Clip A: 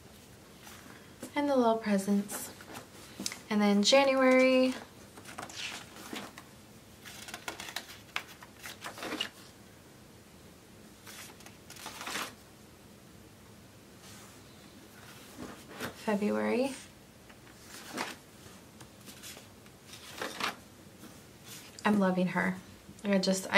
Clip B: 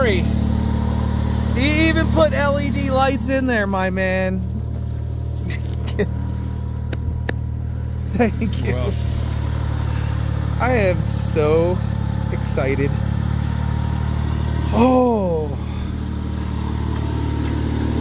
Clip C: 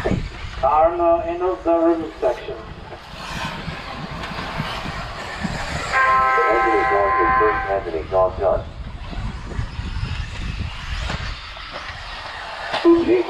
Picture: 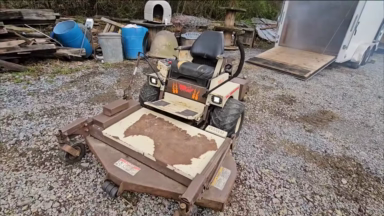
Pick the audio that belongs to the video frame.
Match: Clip B